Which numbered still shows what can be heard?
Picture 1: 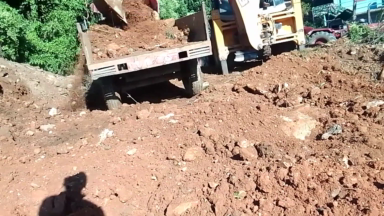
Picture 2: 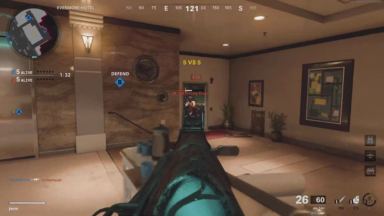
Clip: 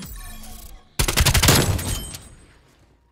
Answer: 2